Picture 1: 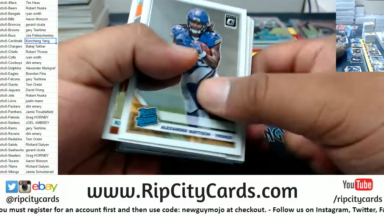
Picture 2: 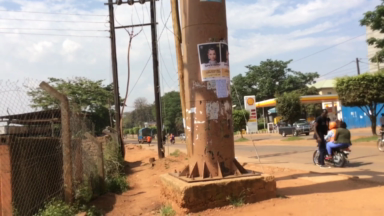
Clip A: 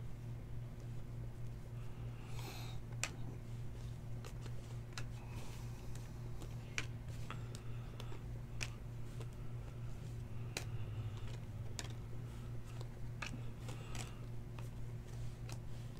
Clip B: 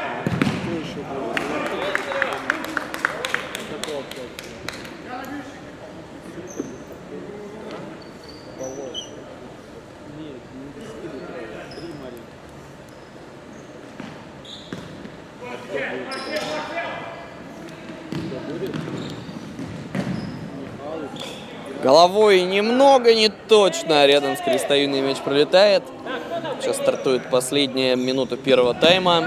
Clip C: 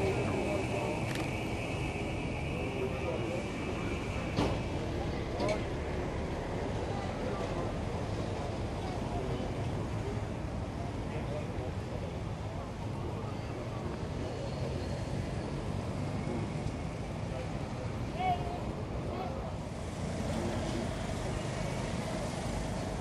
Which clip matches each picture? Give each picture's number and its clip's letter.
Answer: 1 A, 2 C